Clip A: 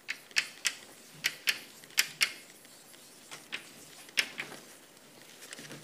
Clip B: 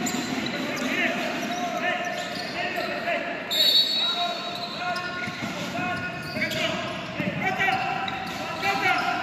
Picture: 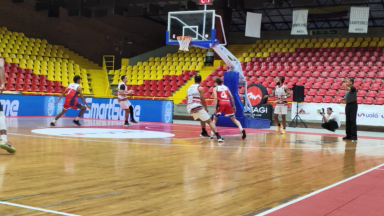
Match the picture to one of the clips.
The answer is B